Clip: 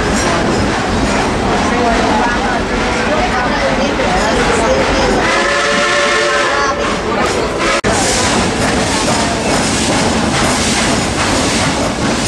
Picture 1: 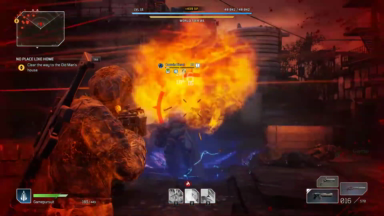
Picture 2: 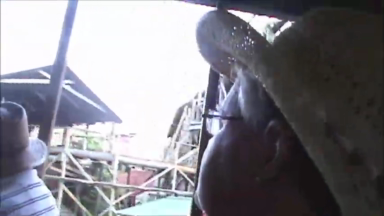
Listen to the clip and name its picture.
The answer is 2